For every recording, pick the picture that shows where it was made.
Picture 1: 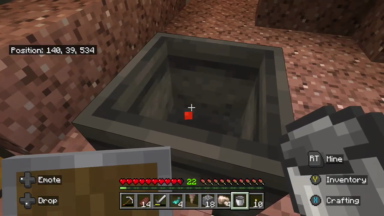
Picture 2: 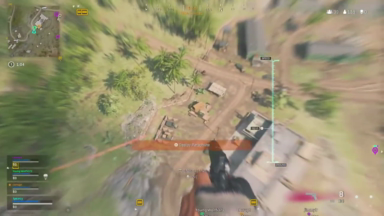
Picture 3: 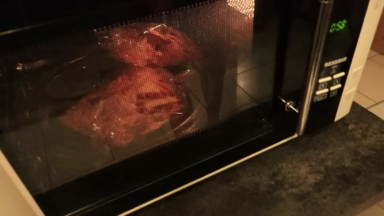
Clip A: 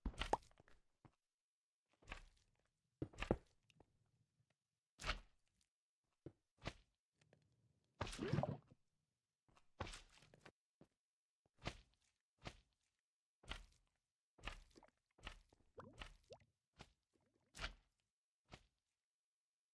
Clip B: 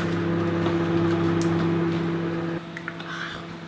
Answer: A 1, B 3